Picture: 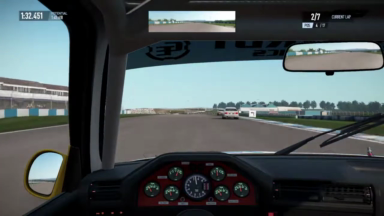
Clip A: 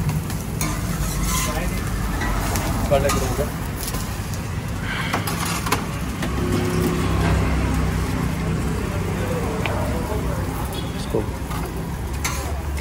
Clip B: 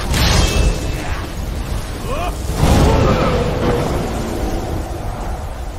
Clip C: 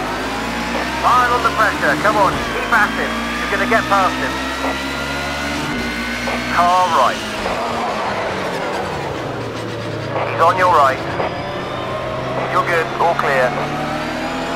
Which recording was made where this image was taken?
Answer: C